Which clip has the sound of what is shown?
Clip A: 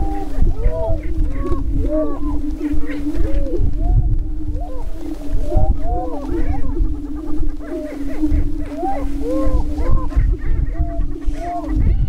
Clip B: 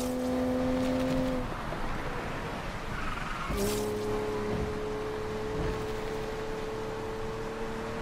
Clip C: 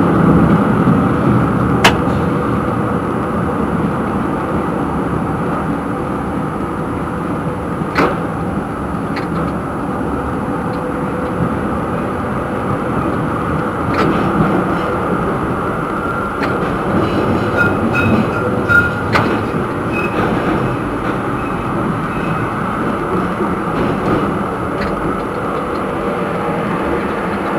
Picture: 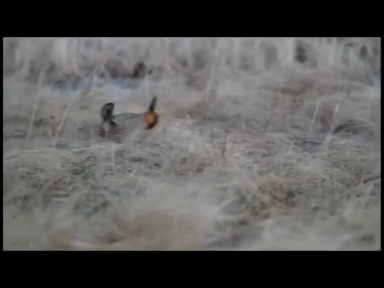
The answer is A